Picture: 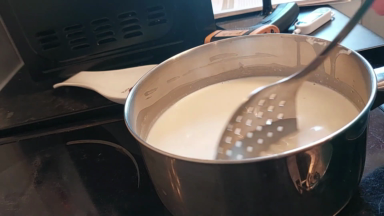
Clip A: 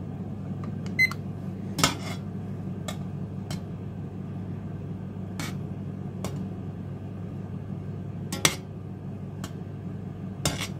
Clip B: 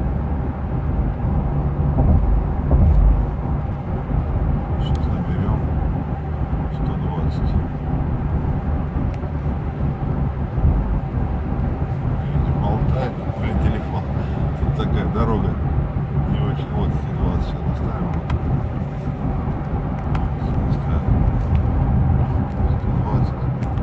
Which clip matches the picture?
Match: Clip A